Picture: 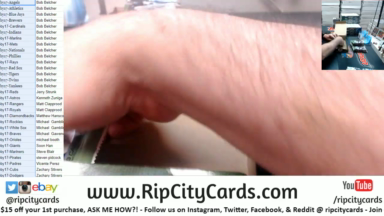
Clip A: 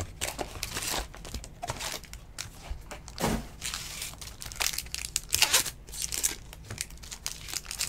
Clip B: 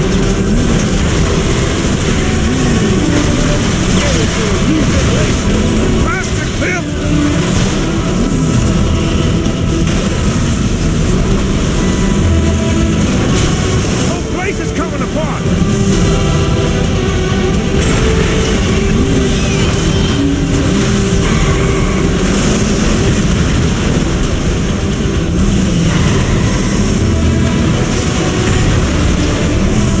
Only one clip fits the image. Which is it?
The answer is A